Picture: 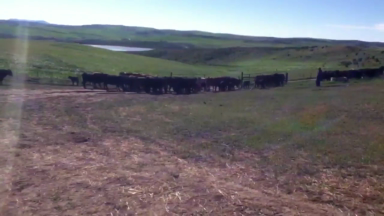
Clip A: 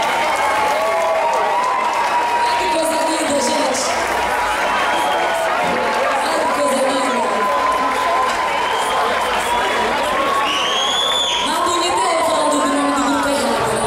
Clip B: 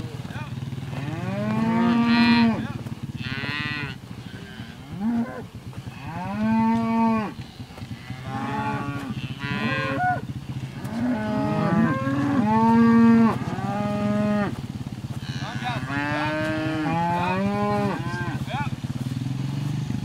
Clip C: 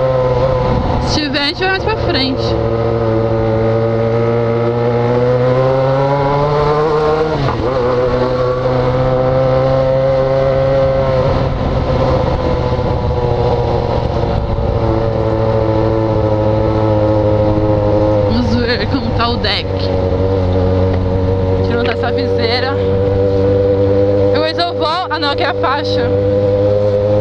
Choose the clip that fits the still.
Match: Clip B